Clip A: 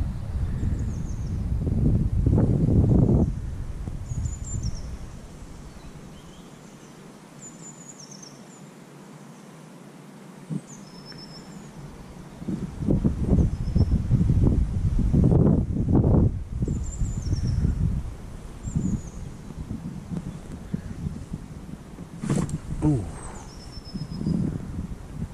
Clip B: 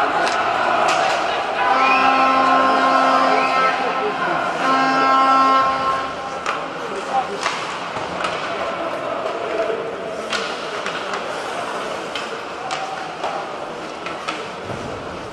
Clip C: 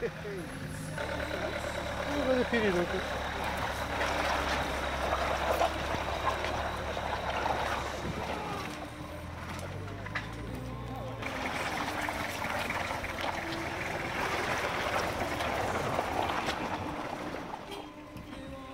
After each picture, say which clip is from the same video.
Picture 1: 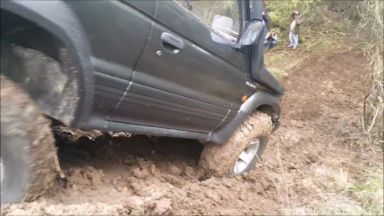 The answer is C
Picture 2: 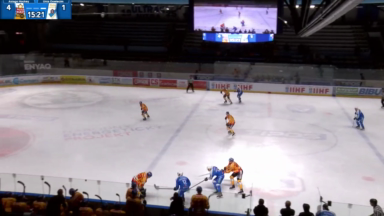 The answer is B